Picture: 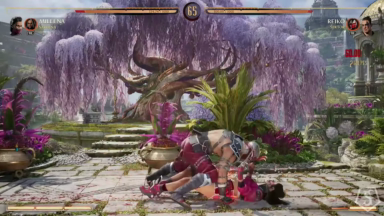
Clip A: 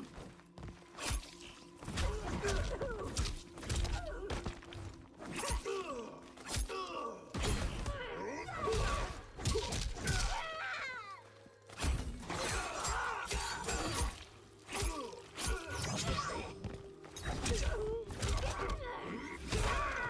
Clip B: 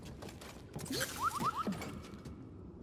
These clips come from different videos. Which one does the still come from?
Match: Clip A